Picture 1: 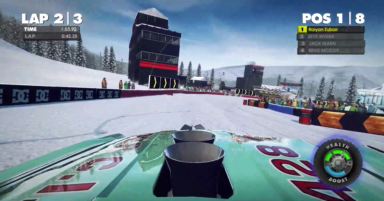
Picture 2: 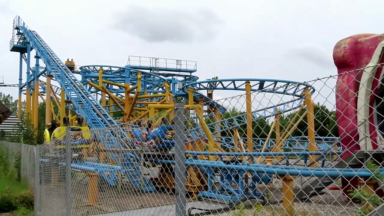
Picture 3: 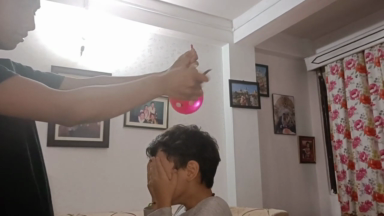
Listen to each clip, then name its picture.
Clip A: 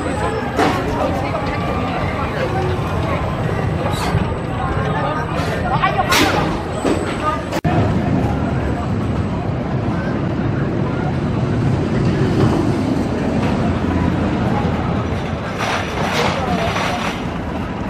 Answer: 2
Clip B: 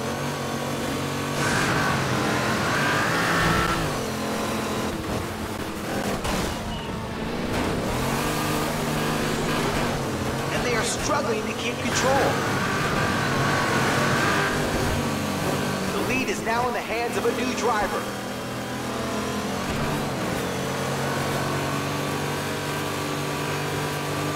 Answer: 1